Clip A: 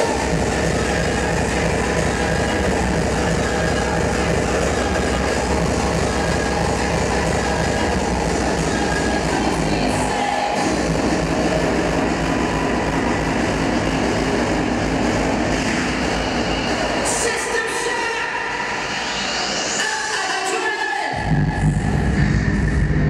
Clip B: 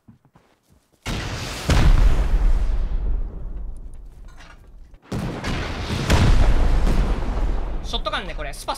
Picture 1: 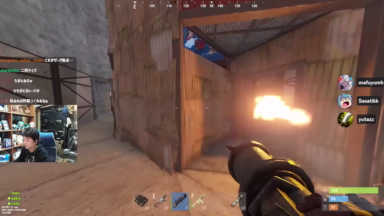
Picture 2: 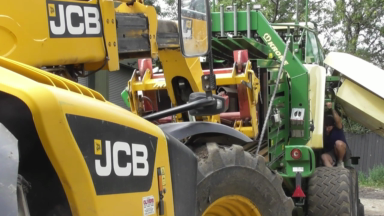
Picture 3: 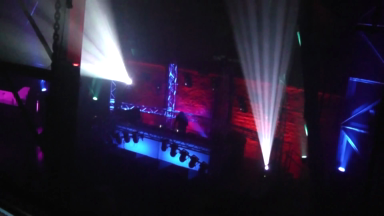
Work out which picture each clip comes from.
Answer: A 3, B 1